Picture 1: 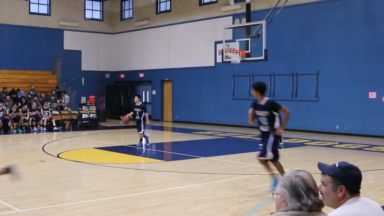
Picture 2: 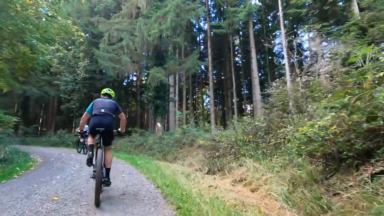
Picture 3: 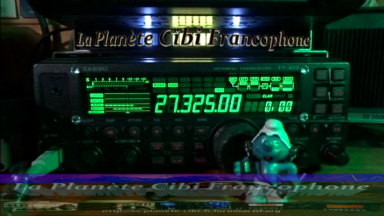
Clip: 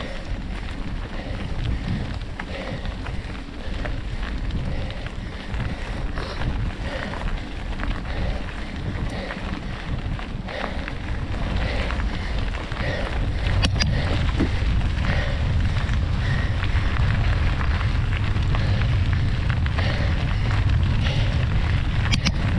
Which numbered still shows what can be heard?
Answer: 2